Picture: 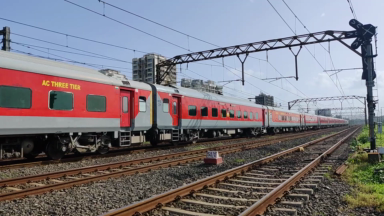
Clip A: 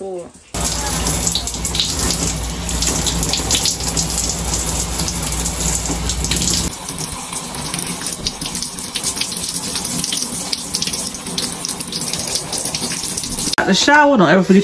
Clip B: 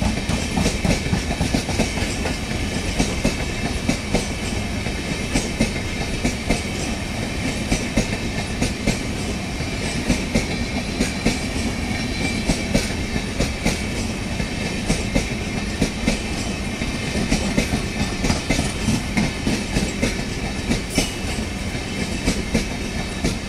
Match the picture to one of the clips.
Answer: B